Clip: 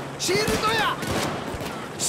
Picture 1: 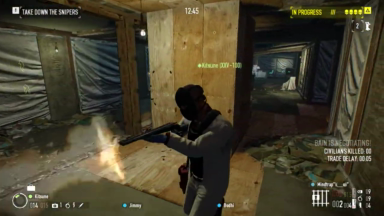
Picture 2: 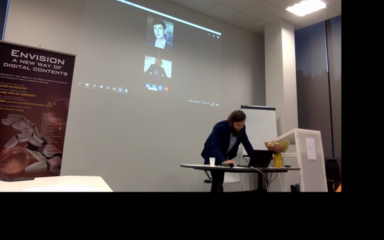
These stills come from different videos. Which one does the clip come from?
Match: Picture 1